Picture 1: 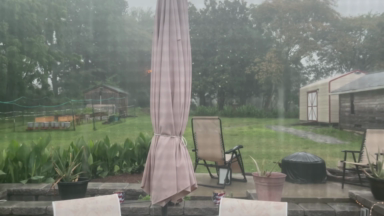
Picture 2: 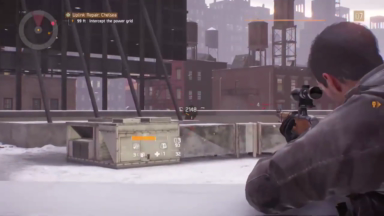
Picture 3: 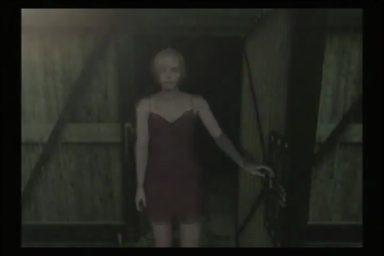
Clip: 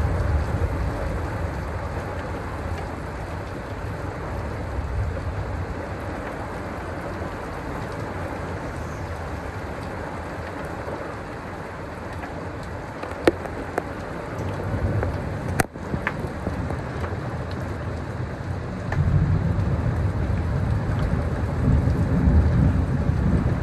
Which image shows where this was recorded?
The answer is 1